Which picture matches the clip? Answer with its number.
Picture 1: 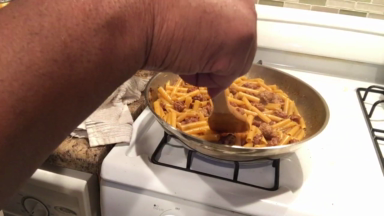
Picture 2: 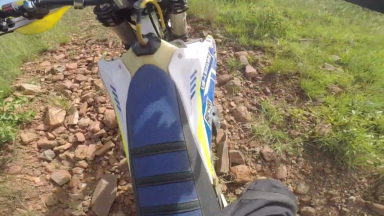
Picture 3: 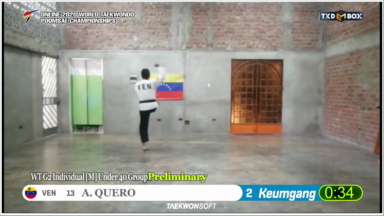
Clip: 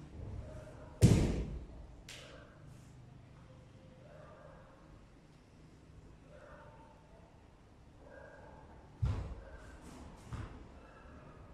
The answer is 3